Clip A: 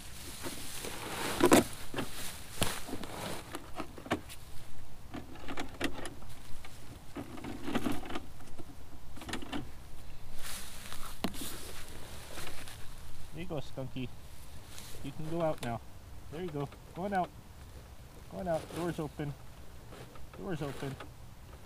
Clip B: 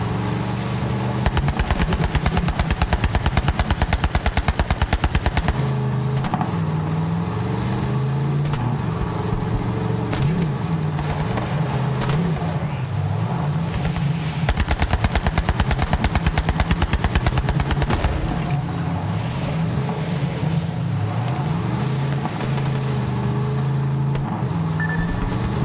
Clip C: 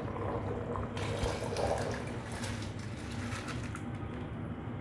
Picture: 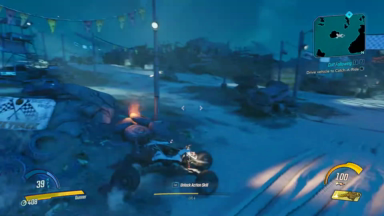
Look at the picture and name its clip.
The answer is B